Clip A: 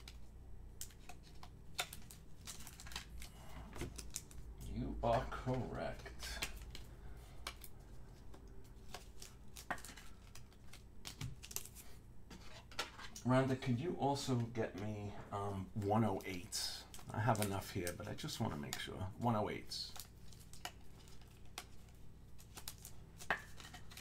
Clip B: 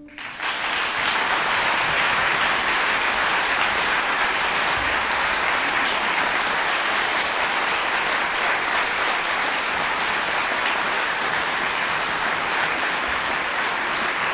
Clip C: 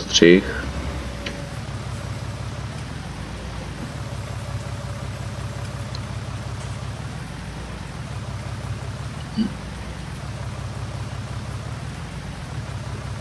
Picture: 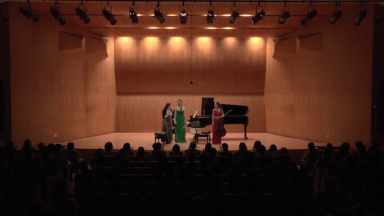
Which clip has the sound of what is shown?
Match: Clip B